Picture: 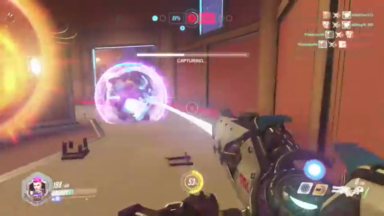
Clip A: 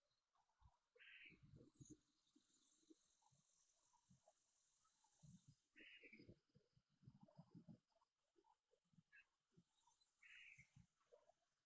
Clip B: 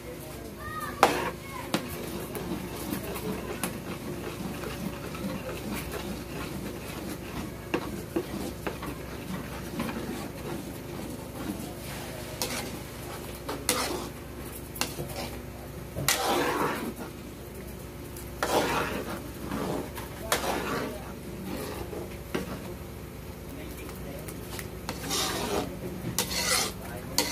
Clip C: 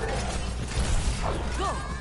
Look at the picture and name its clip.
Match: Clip C